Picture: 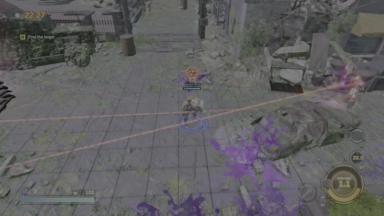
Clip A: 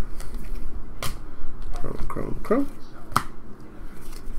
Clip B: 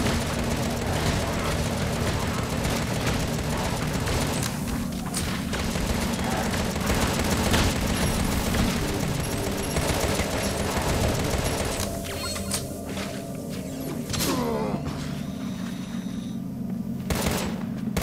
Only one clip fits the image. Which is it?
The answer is B